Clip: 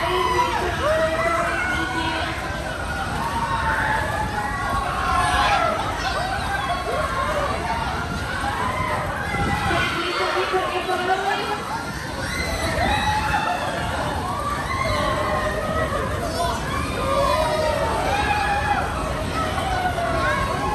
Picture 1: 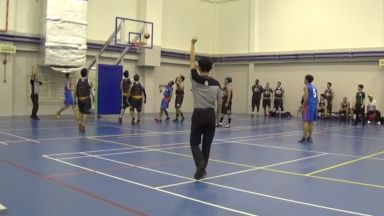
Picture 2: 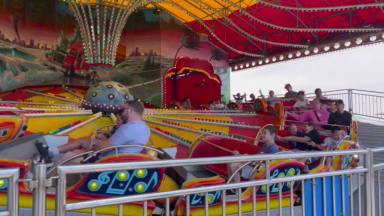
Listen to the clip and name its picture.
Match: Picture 2